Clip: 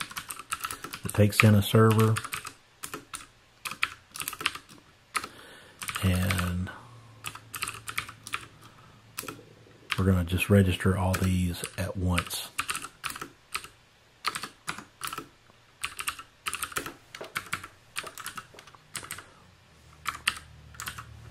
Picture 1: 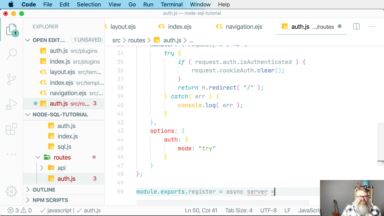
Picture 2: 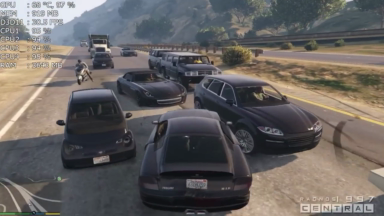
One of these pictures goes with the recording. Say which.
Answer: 1